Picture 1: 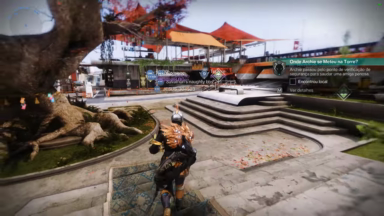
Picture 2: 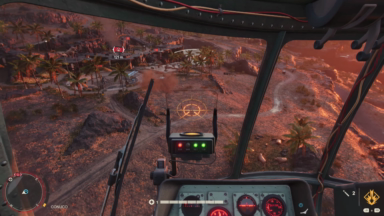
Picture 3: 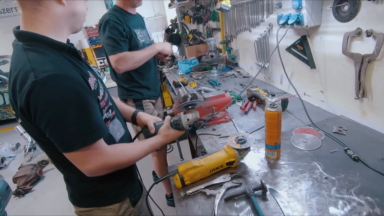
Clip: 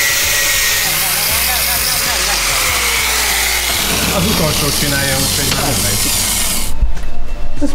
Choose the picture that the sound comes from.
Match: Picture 3